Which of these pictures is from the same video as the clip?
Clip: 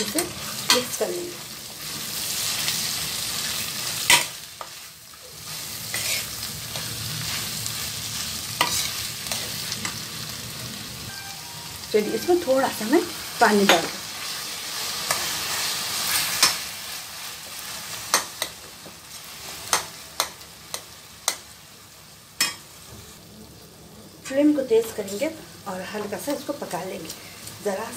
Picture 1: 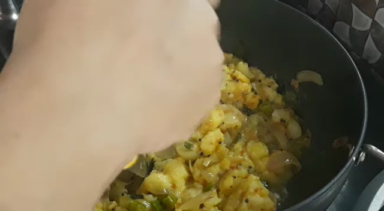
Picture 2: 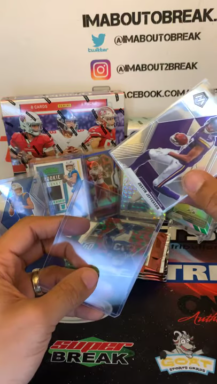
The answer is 1